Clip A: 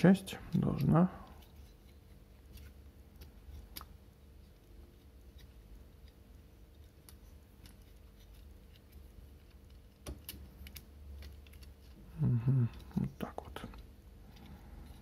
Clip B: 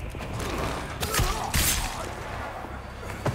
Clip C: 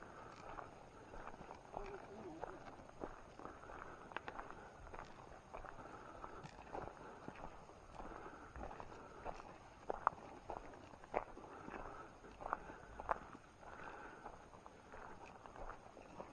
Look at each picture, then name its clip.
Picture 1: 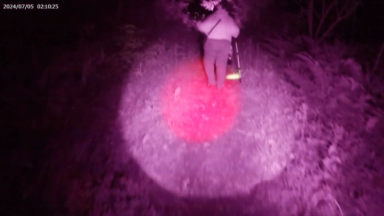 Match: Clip C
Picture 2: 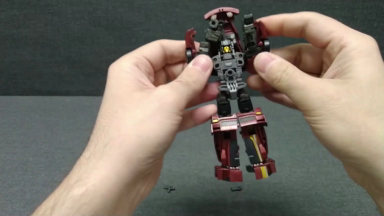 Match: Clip A